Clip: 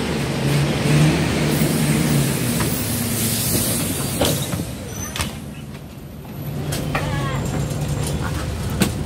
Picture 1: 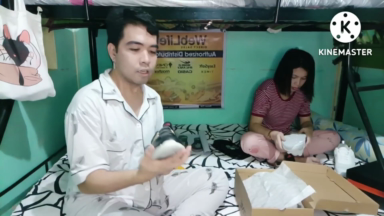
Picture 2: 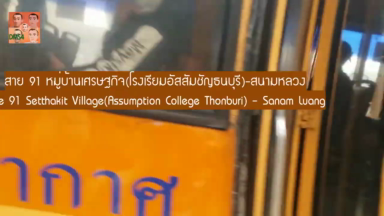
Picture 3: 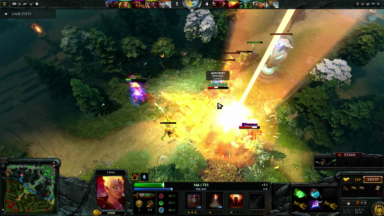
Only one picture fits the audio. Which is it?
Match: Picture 2